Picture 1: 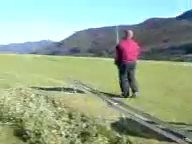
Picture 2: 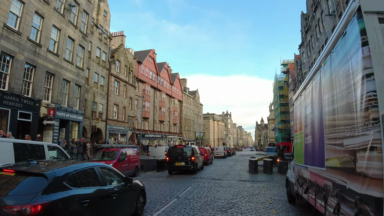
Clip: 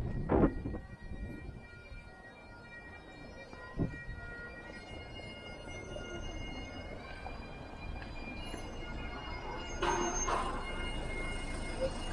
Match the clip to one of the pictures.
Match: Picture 2